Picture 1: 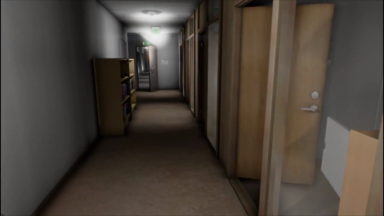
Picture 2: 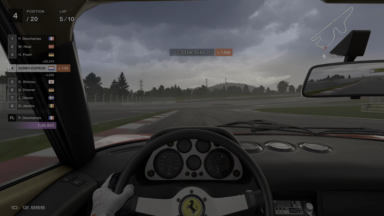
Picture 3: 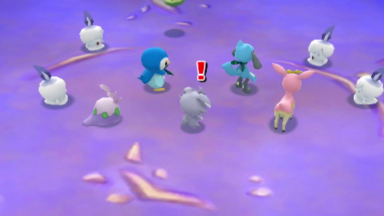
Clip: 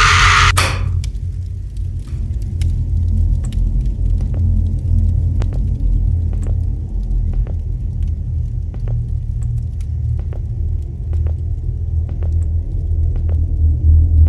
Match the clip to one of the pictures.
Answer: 1